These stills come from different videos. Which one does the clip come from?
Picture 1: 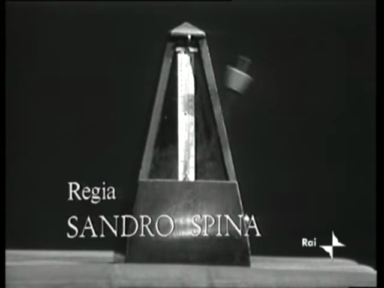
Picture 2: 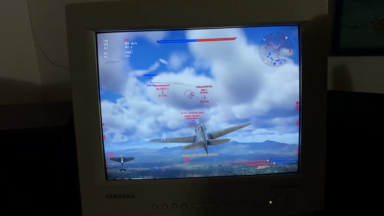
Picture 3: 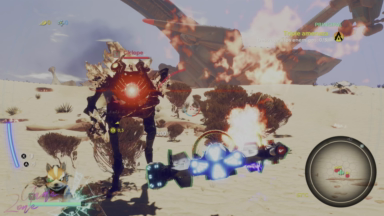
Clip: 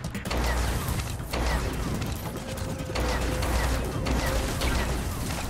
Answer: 3